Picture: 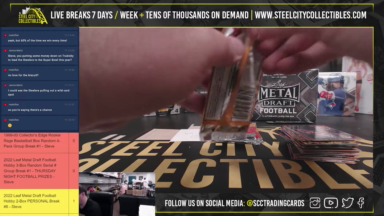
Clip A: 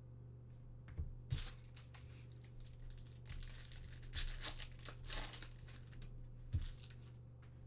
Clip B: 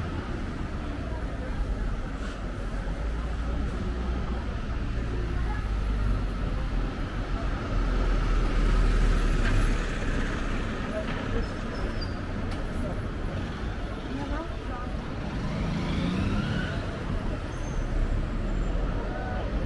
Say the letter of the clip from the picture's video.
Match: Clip A